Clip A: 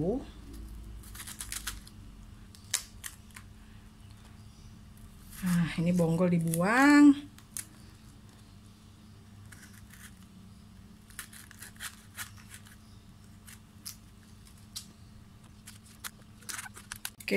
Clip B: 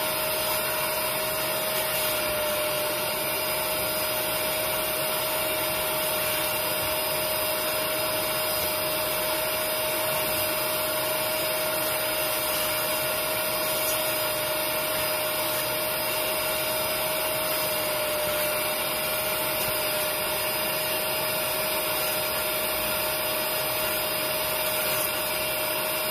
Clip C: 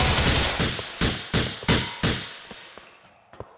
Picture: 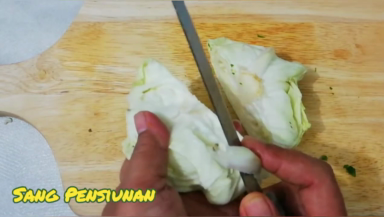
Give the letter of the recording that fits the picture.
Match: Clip A